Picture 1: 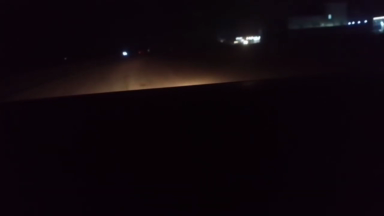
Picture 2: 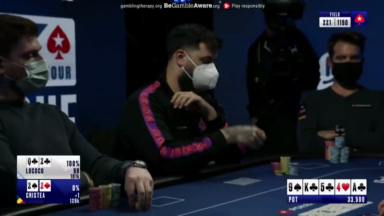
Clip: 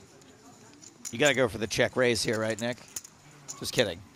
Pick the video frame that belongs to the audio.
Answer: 2